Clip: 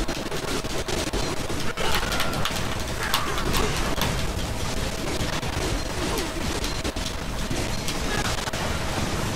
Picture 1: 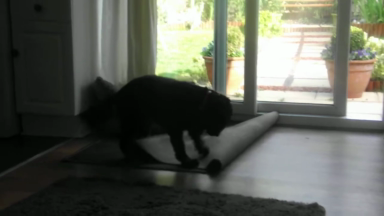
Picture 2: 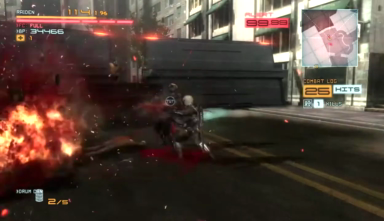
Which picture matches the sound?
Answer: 2